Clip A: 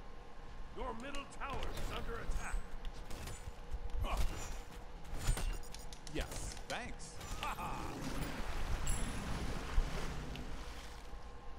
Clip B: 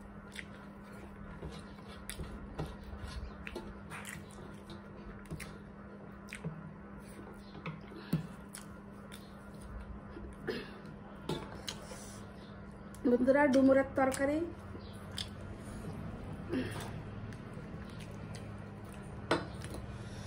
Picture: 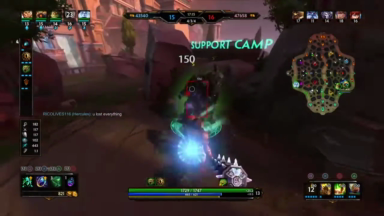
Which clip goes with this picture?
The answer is A